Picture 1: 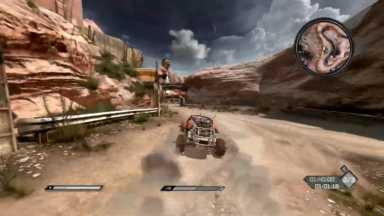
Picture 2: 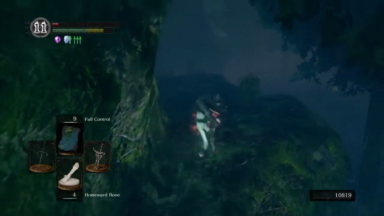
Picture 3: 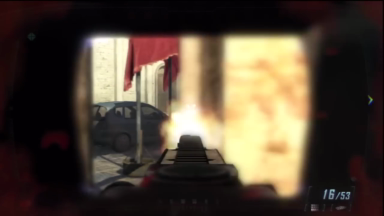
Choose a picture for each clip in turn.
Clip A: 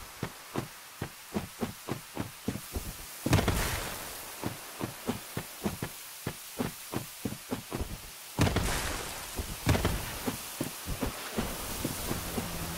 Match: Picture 2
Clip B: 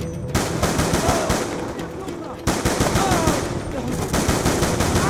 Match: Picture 3